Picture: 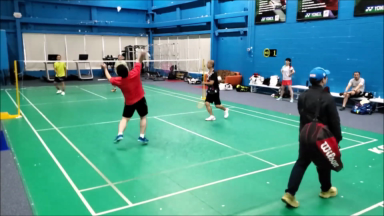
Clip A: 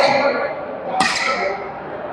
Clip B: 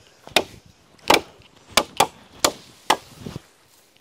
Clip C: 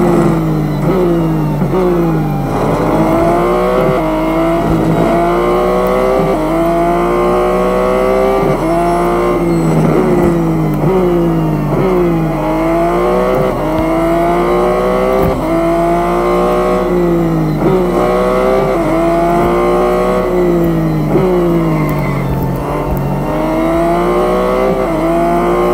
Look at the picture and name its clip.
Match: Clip A